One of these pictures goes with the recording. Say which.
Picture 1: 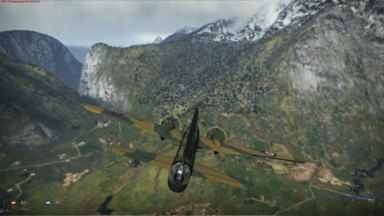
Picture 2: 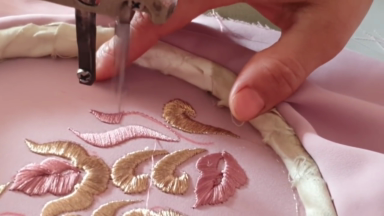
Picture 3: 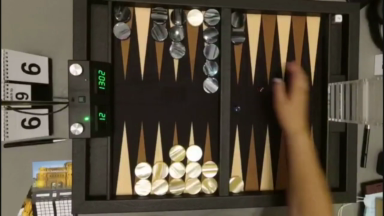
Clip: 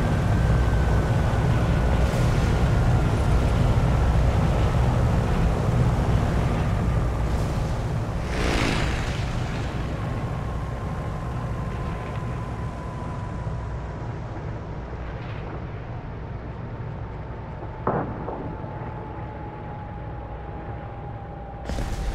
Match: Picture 1